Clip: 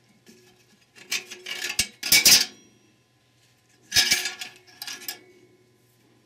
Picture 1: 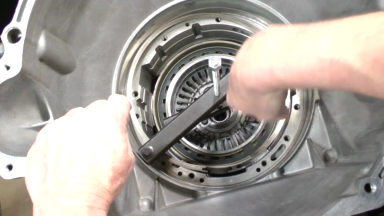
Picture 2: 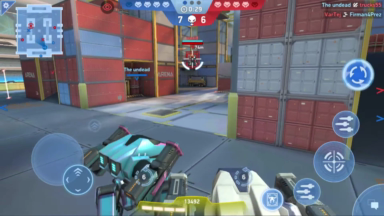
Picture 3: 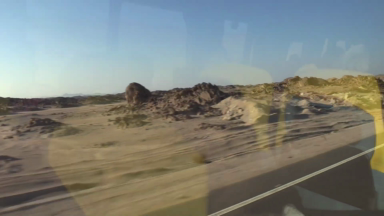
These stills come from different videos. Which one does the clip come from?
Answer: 1